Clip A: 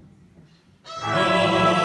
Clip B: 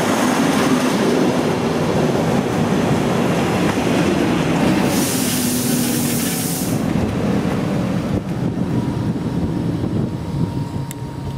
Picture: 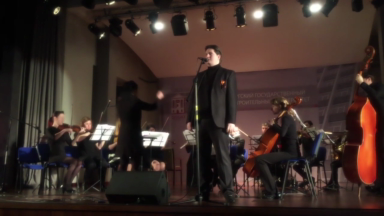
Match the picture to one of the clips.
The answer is A